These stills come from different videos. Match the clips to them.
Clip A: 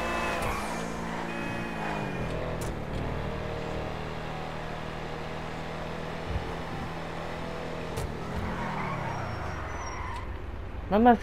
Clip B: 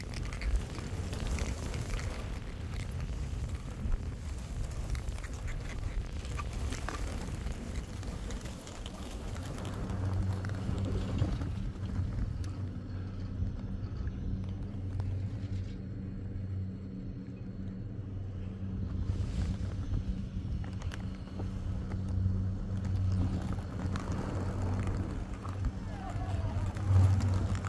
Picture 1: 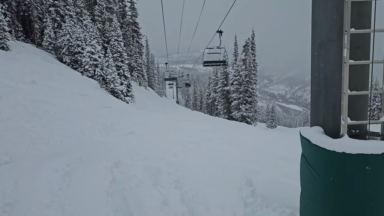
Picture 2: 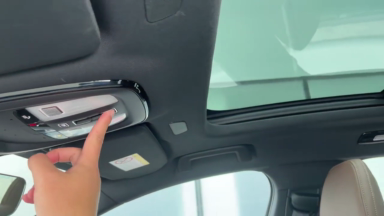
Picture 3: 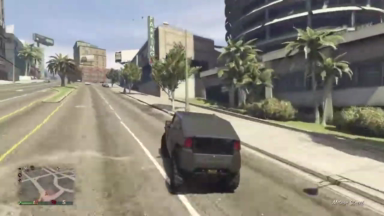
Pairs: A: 3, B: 1